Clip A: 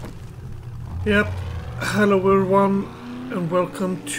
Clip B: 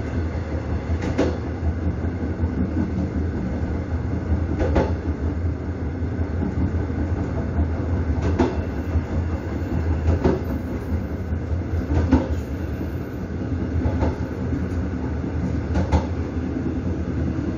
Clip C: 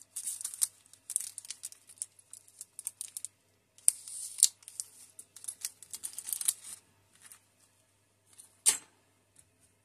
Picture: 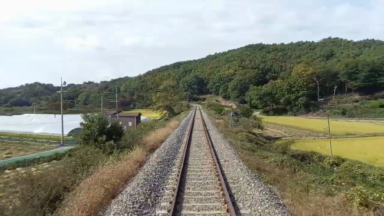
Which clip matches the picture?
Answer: B